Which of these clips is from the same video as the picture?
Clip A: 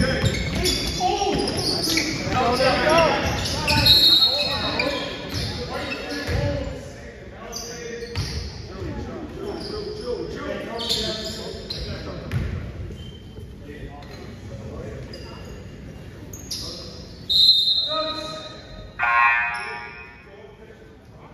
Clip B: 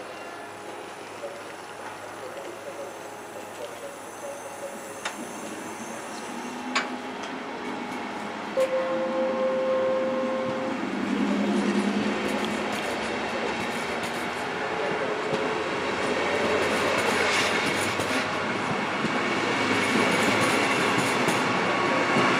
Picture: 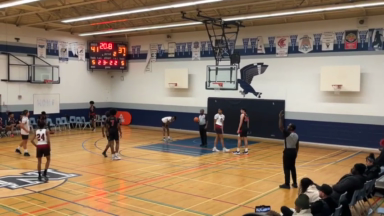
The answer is A